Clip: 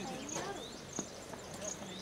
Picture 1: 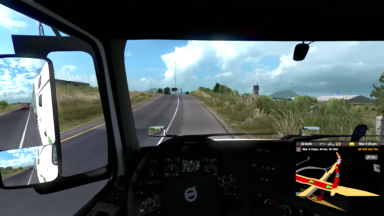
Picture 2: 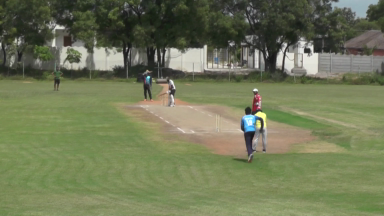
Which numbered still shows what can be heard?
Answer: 2